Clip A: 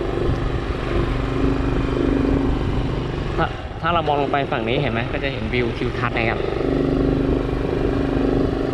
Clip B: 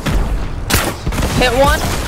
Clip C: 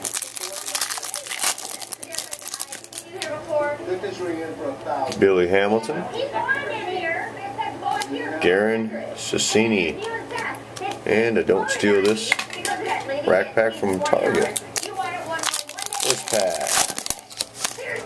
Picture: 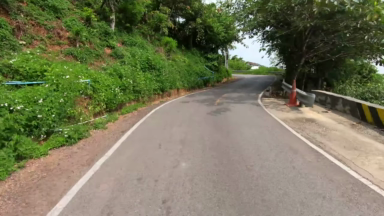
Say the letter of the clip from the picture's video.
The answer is A